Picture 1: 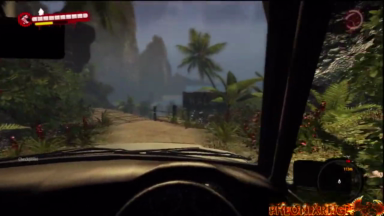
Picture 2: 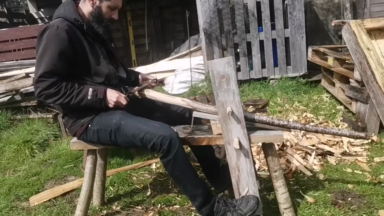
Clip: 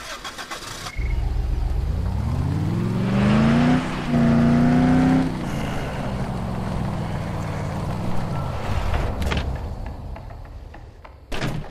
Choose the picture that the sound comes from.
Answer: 1